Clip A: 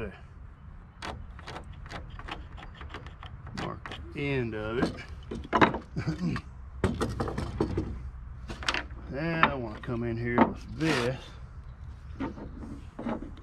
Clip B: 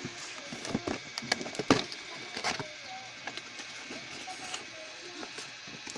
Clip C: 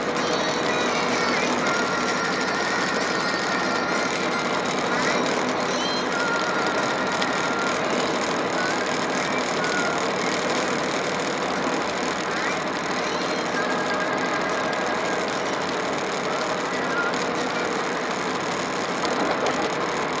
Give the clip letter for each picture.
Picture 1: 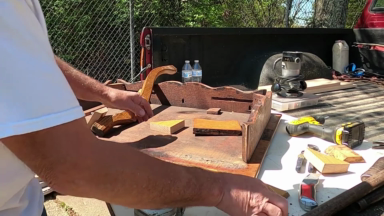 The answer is A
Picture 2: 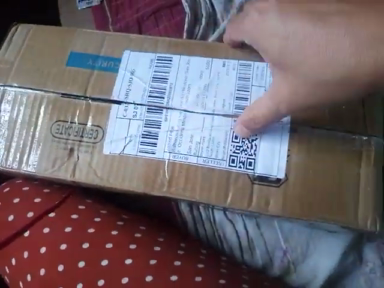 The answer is B